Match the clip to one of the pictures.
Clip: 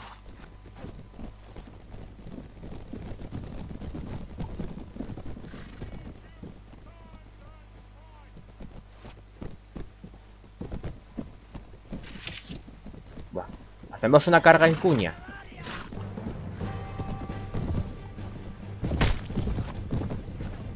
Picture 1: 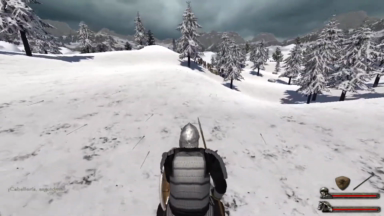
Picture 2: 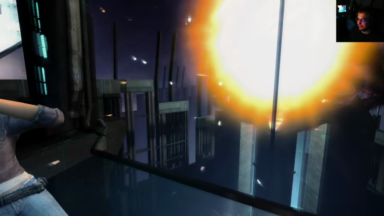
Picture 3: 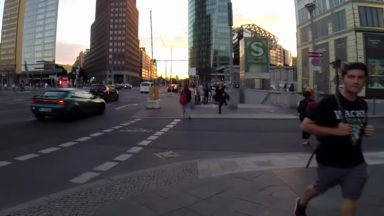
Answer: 1